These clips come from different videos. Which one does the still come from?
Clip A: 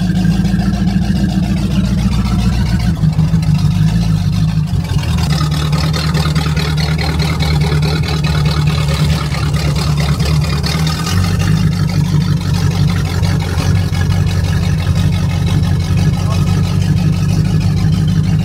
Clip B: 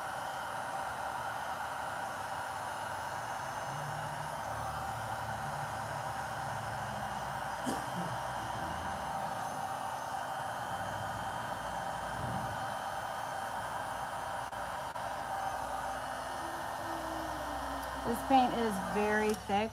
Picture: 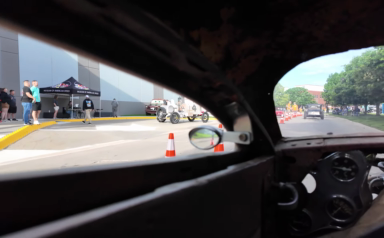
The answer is A